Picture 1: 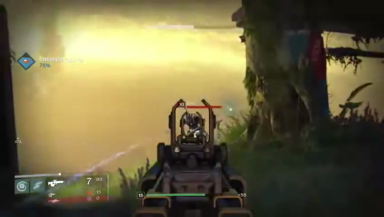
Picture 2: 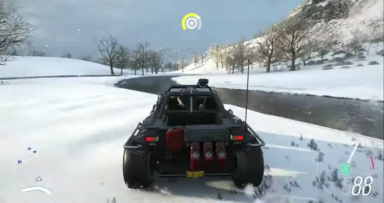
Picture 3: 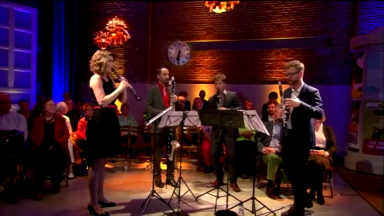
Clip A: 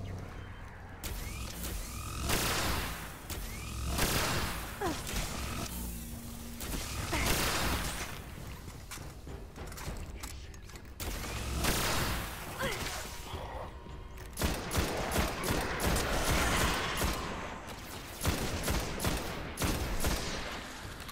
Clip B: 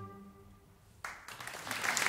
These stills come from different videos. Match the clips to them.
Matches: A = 1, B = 3